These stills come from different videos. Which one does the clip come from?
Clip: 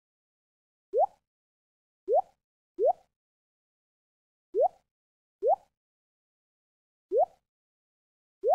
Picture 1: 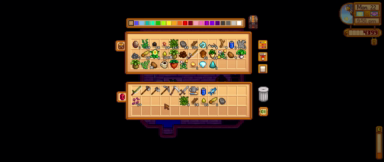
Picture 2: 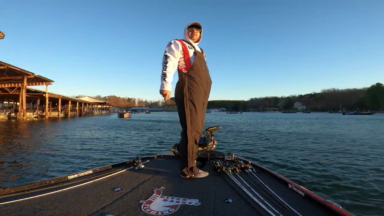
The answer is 1